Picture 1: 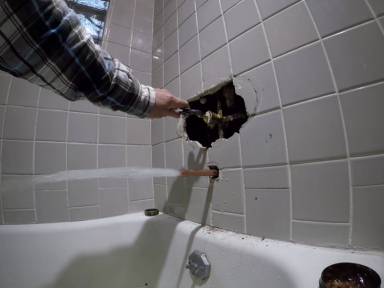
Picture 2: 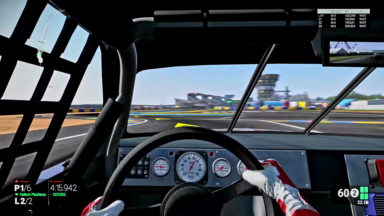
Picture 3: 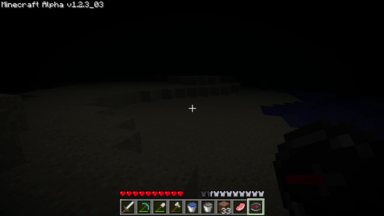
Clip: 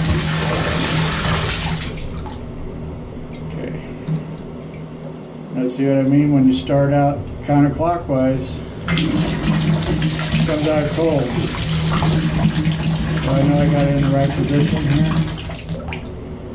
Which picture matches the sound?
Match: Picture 1